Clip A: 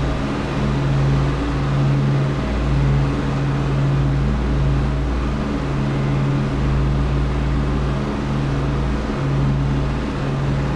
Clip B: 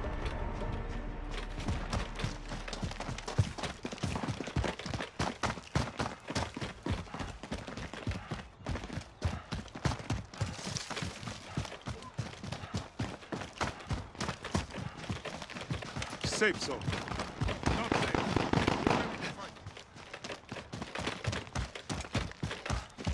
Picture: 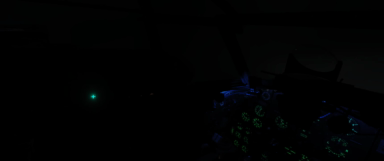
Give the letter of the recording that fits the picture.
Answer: A